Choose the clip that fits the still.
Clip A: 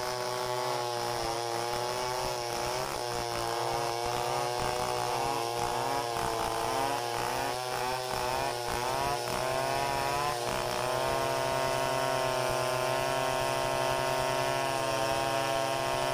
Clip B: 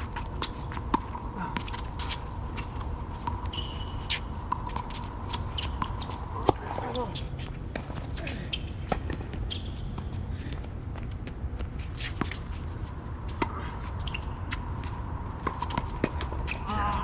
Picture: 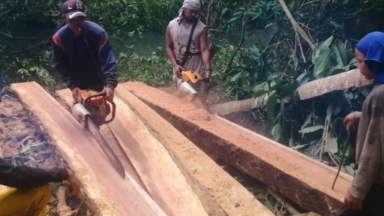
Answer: A